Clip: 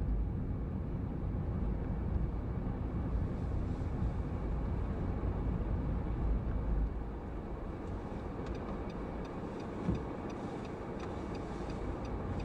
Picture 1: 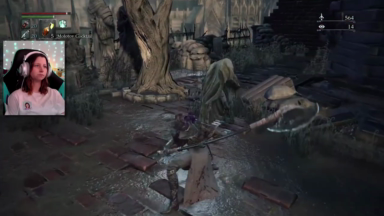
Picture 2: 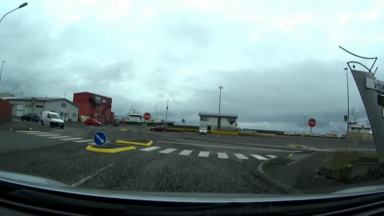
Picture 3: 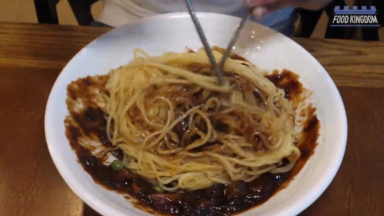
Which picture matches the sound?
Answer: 2